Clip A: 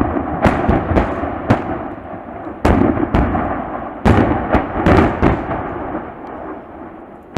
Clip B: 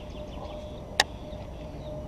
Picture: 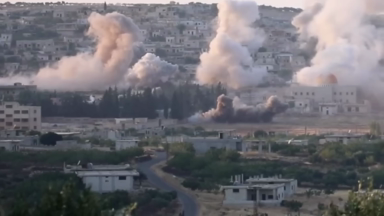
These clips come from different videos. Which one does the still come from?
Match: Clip A